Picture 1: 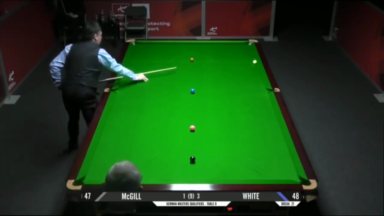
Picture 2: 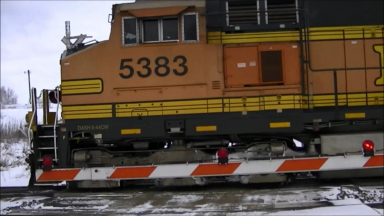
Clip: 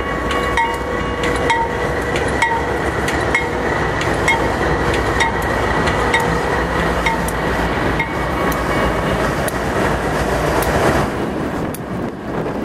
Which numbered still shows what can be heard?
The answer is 2